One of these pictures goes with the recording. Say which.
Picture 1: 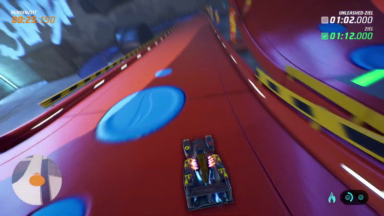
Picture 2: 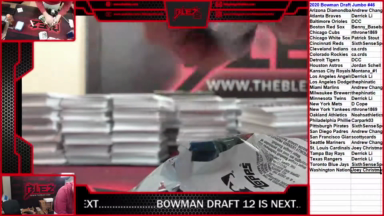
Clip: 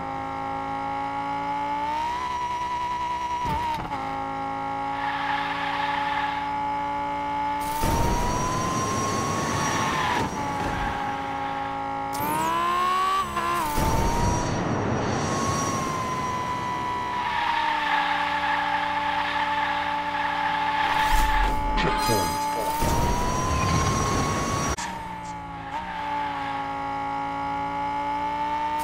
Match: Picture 1